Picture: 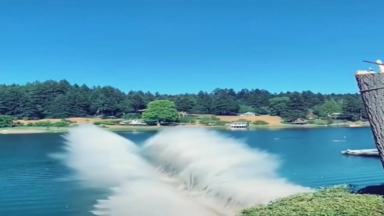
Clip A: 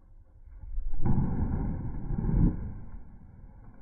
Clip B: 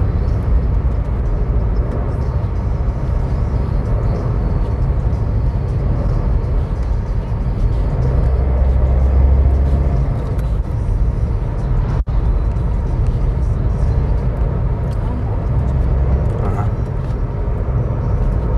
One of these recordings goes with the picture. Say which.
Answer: A